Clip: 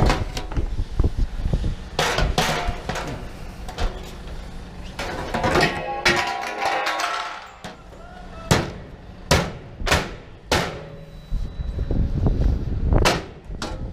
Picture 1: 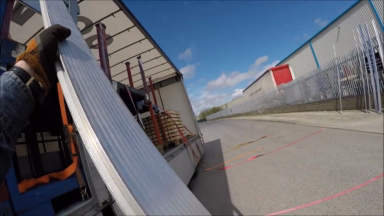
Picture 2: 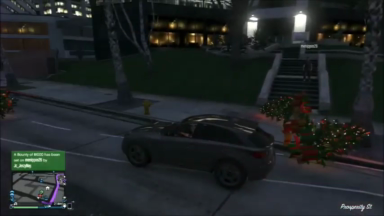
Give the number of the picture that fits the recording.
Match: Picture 1